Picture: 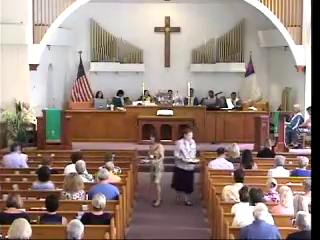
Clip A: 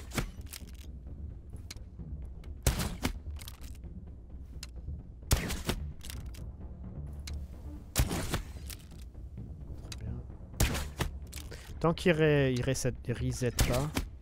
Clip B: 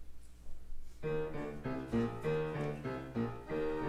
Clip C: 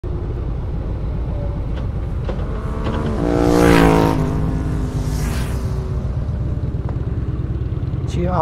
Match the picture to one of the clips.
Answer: B